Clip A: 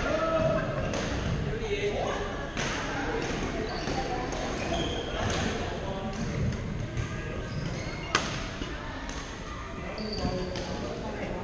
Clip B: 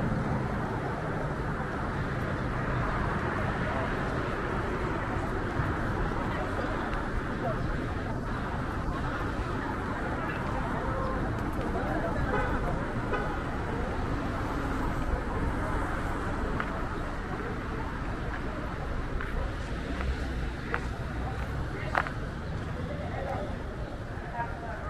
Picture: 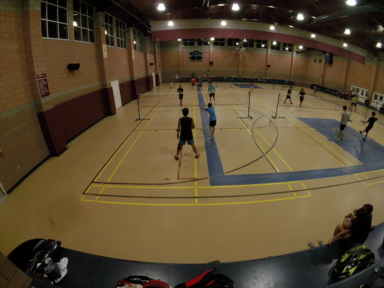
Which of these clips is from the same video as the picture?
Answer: A